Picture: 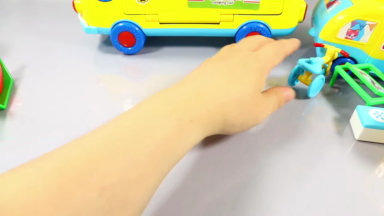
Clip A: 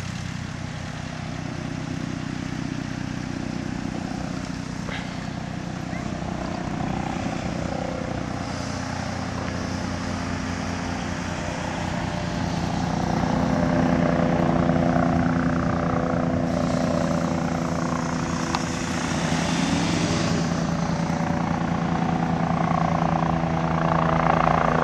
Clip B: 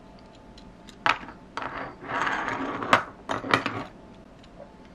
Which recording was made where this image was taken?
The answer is B